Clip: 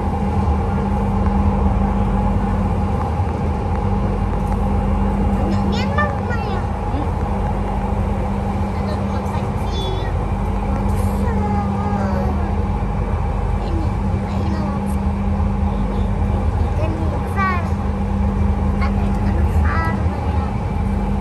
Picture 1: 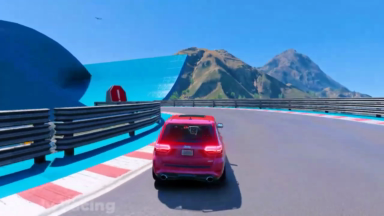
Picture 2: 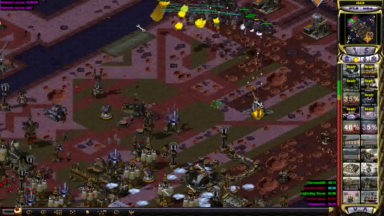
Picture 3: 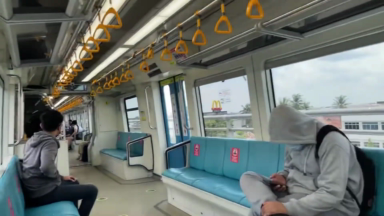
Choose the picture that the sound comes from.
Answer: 3